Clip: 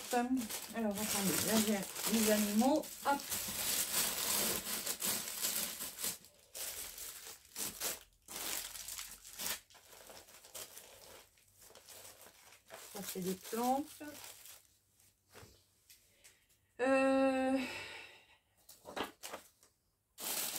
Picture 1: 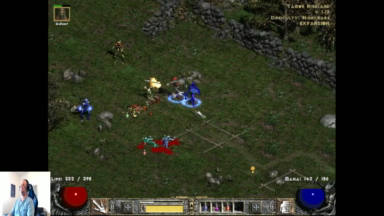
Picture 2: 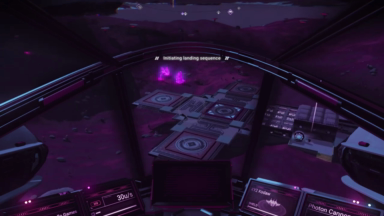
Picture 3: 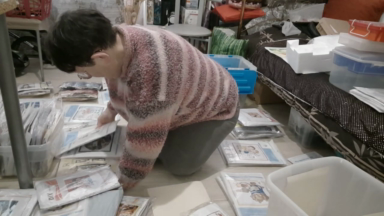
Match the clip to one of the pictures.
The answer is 3